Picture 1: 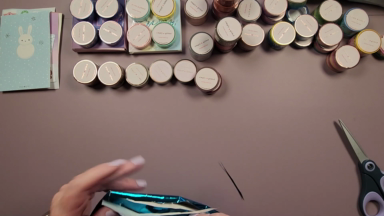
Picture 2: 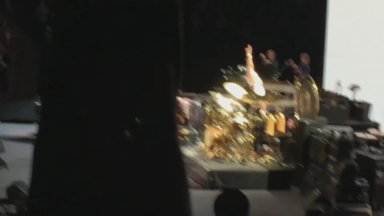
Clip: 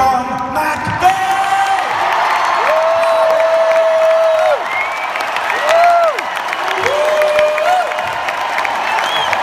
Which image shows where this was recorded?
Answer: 2